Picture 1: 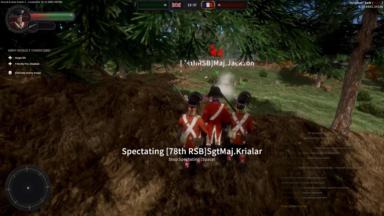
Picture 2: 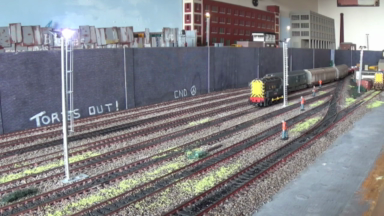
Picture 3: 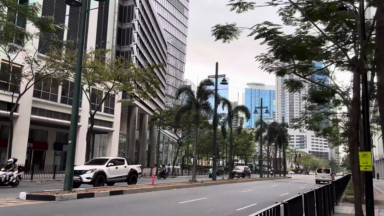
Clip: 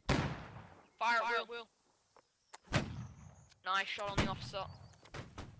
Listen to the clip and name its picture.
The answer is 1